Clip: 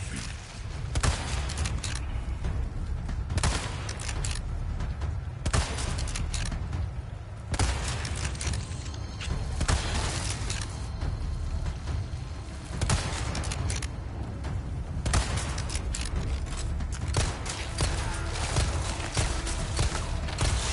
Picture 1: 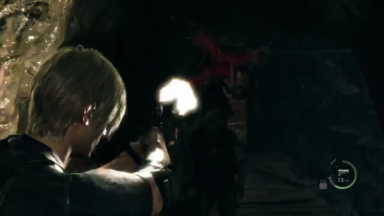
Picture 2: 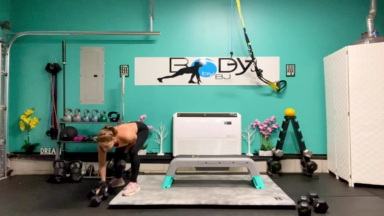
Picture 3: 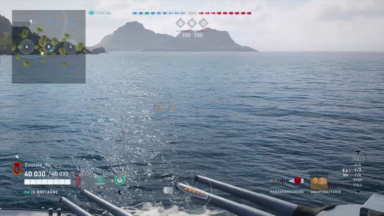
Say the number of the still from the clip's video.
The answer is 1